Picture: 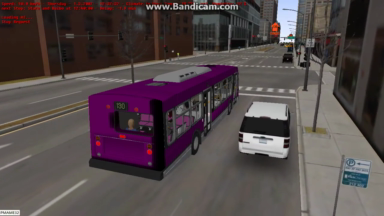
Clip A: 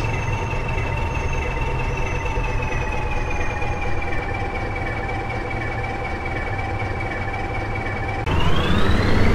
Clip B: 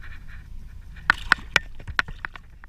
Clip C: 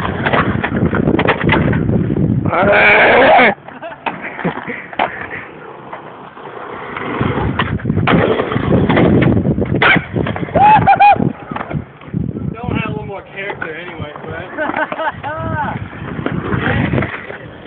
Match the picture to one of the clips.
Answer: A